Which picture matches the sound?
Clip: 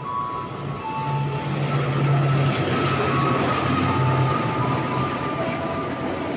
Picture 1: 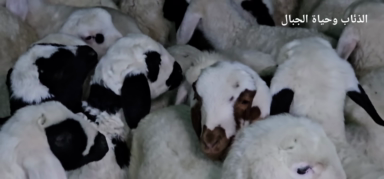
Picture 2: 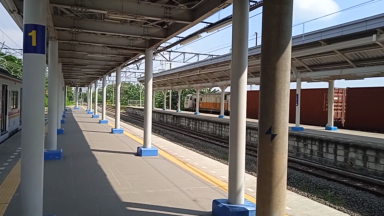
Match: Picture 2